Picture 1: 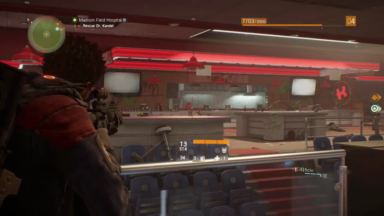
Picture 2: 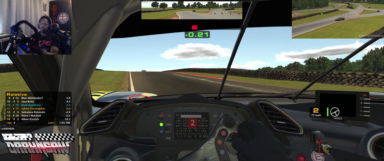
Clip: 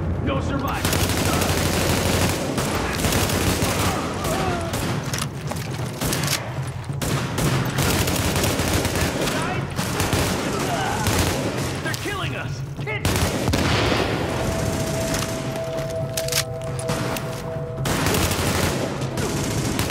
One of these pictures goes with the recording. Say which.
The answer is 1